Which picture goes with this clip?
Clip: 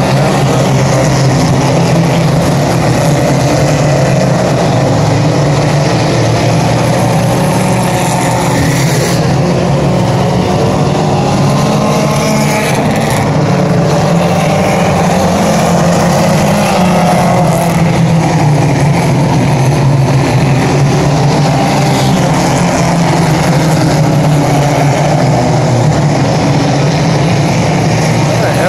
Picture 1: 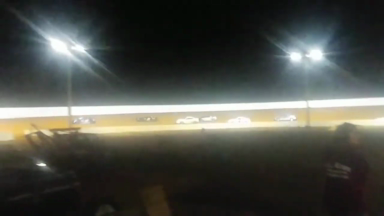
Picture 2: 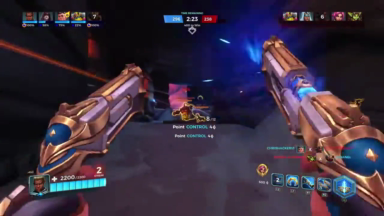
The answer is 1